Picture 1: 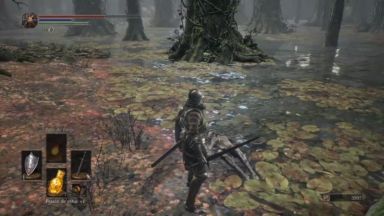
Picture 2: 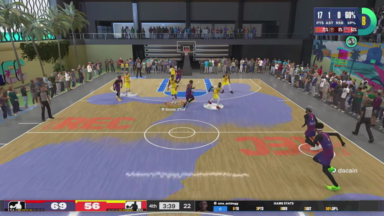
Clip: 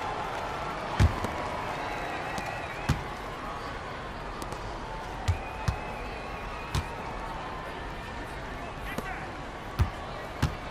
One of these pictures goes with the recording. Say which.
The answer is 2